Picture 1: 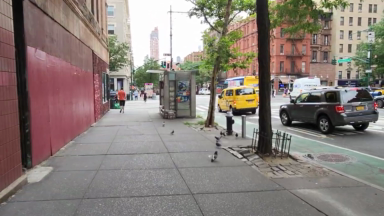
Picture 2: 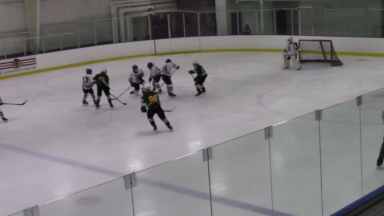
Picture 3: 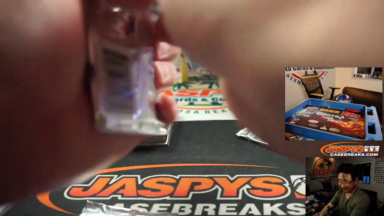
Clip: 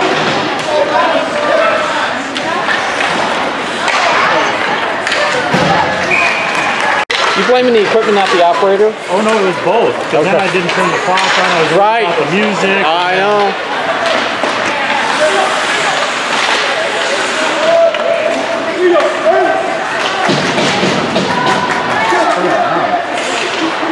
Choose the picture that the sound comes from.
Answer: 2